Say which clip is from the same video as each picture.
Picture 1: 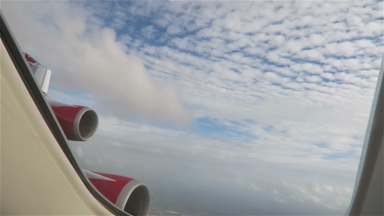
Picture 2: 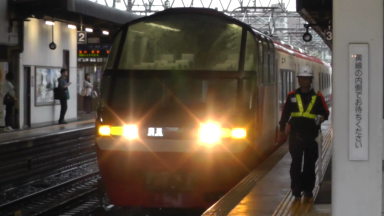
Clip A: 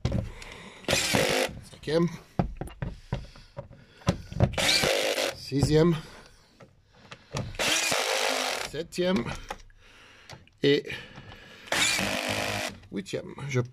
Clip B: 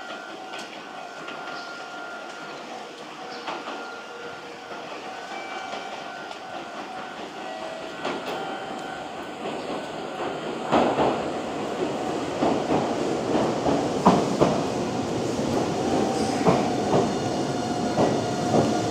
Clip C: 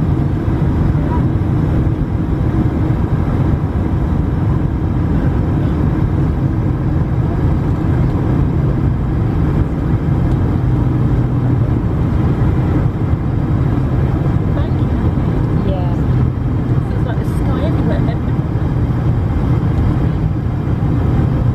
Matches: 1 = C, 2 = B